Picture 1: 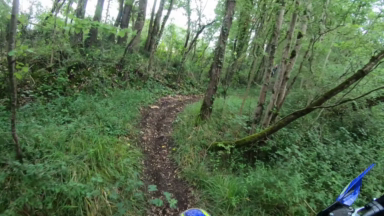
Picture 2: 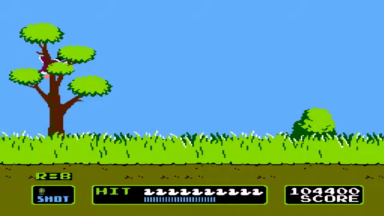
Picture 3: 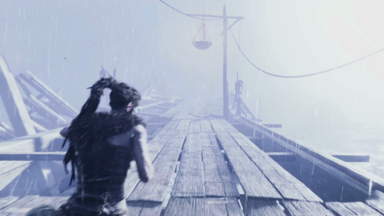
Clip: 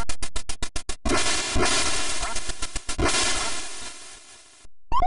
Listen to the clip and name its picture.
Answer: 2